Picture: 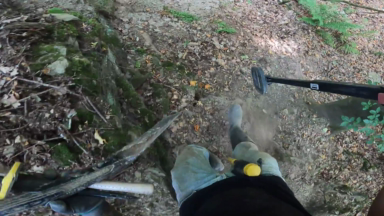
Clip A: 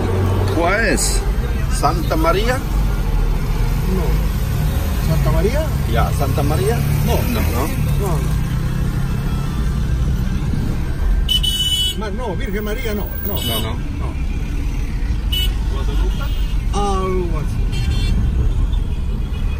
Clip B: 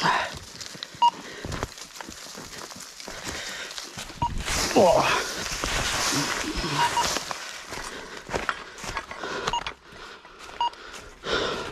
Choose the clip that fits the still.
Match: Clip B